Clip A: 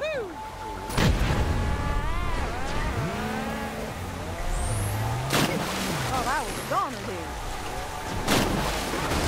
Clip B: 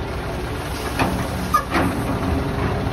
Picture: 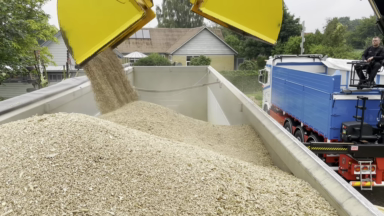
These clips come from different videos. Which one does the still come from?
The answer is B